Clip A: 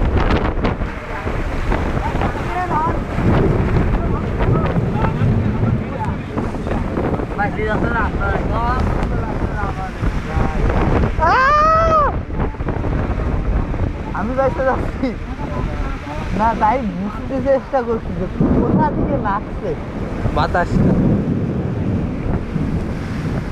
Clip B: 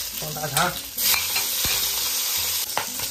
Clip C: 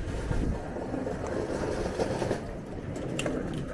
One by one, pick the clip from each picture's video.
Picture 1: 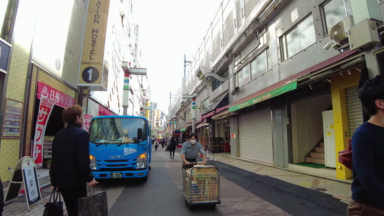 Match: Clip C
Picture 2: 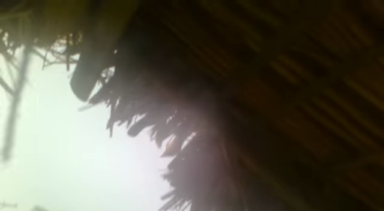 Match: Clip A